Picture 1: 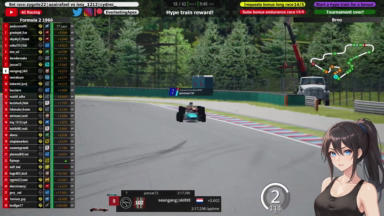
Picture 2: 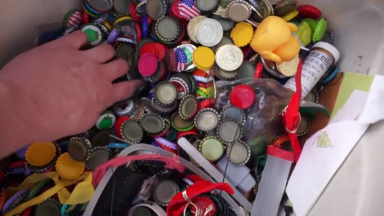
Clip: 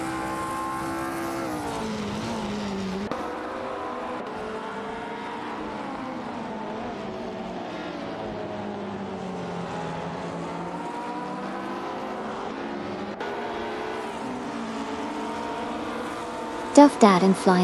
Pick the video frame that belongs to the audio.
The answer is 1